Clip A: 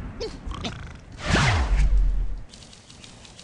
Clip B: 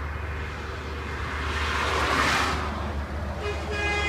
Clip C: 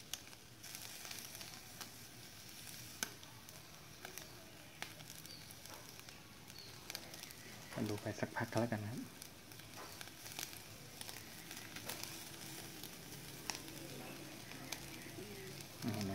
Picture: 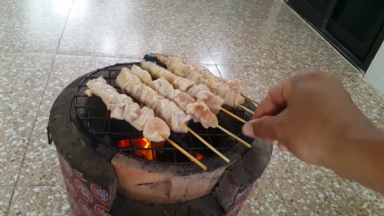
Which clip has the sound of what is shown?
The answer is C